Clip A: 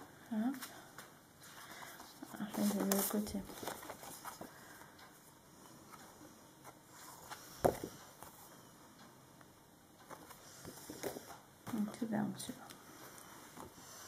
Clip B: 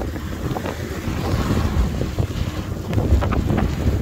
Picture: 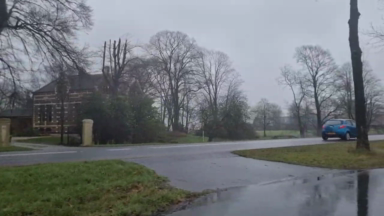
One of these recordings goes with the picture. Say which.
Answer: B